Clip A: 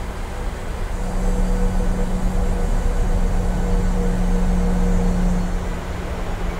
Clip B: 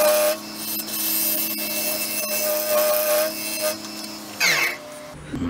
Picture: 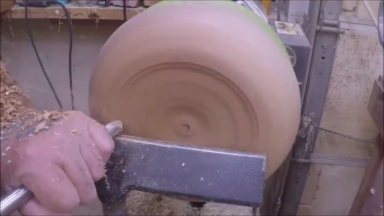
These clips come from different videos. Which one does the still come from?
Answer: B